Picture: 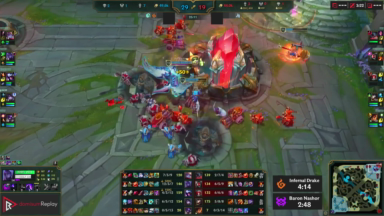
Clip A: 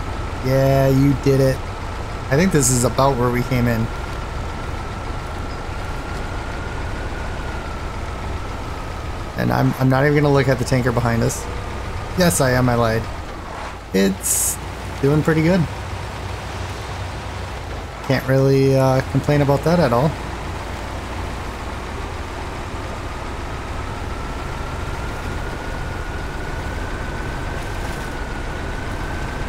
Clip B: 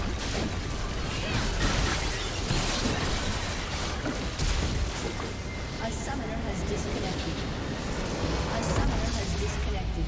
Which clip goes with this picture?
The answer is B